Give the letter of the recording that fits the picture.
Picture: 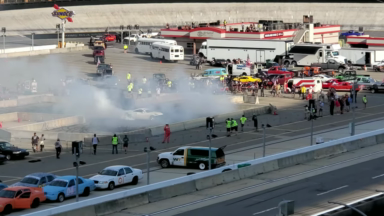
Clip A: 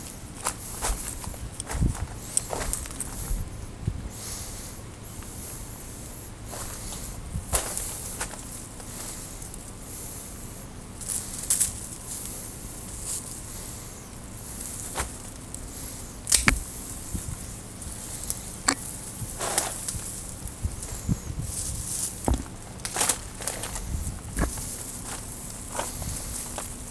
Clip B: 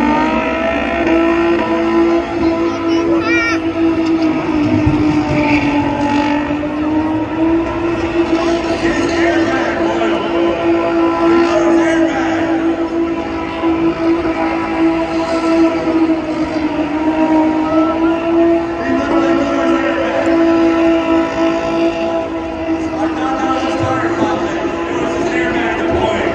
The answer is B